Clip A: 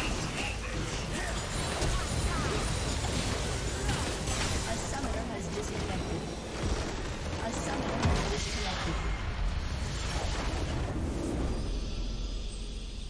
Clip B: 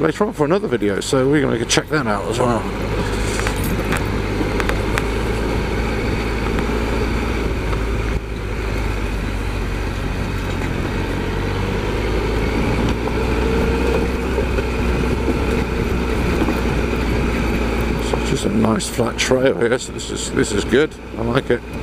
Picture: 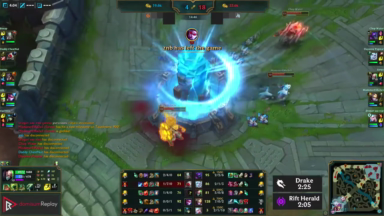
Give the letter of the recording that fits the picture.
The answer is A